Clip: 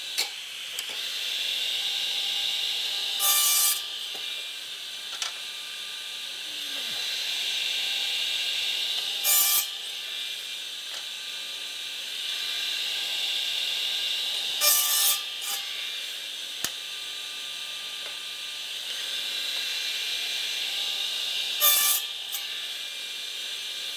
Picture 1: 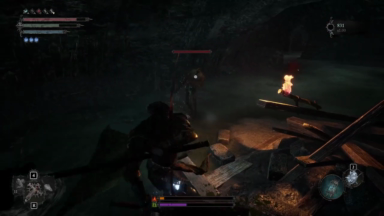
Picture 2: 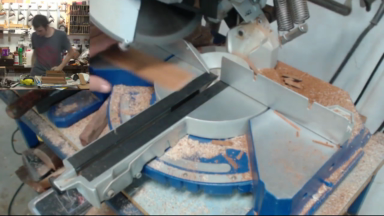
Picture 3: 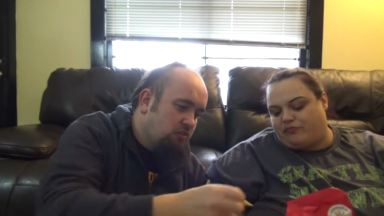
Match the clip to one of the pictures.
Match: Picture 2